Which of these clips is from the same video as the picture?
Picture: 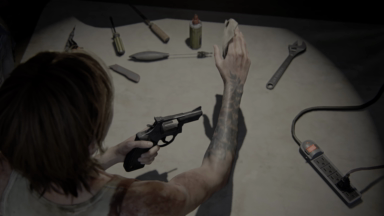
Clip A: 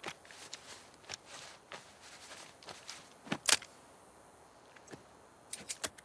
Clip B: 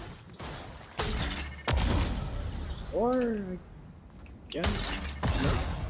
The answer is A